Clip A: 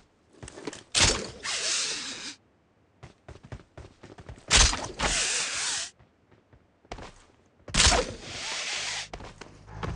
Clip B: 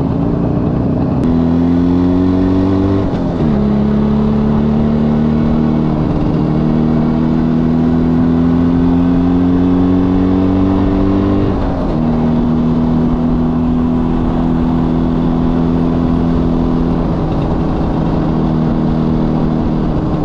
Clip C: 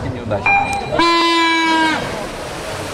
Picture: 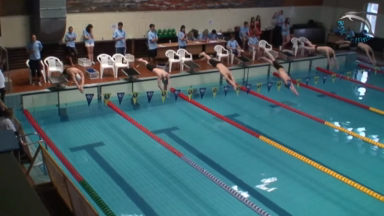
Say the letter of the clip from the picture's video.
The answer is C